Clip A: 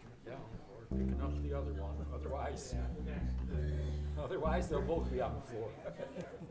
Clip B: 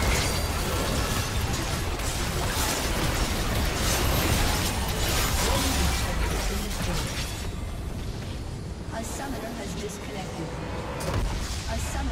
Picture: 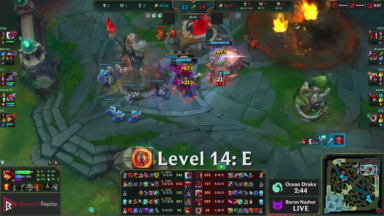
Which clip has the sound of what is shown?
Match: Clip B